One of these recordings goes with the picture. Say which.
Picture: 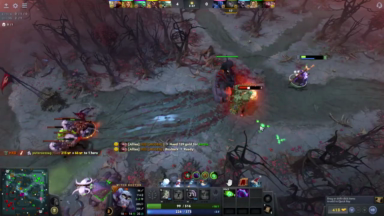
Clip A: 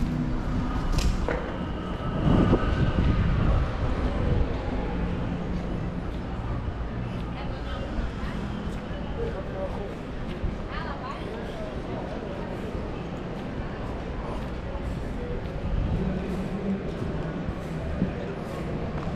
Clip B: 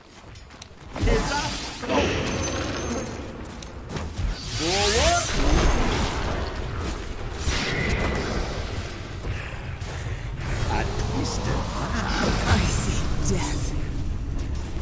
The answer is B